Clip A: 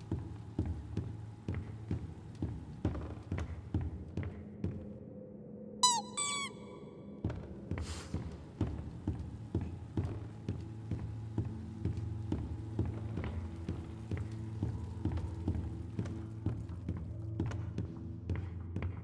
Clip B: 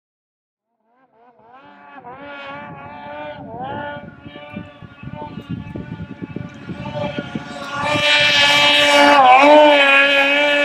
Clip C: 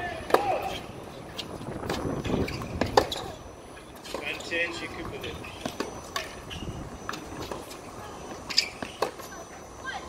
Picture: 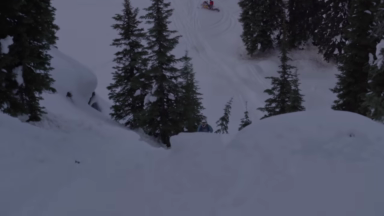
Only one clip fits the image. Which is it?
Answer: B